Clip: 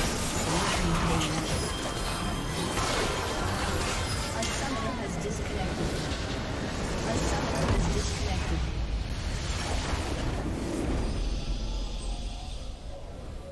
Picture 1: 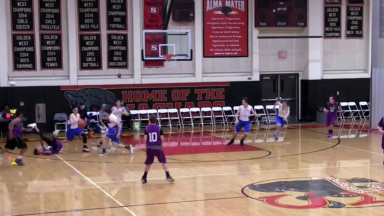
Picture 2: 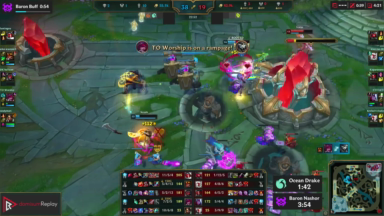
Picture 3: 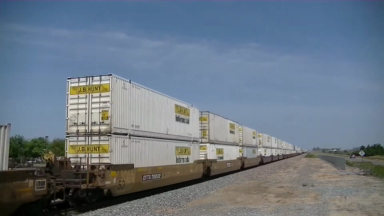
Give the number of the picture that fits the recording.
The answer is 2